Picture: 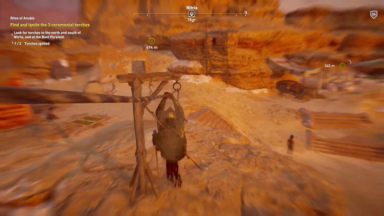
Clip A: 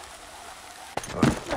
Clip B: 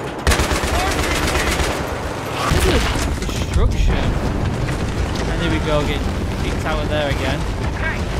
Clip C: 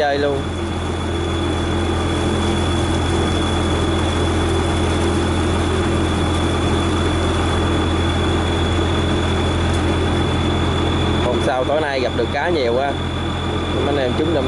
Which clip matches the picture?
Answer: A